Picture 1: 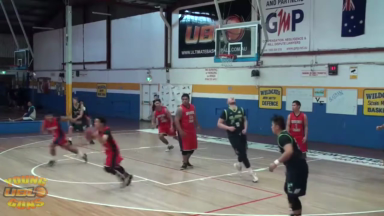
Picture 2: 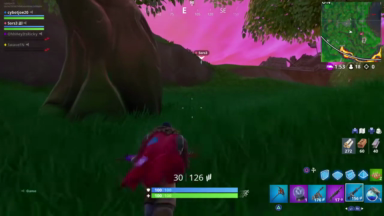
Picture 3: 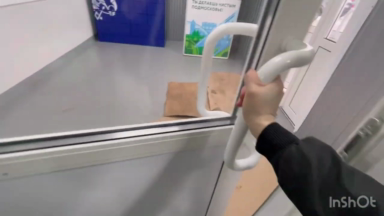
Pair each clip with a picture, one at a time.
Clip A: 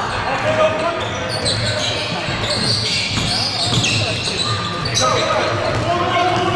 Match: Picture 1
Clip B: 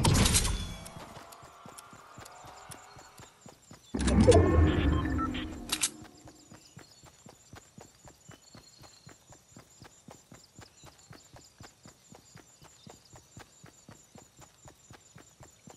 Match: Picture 2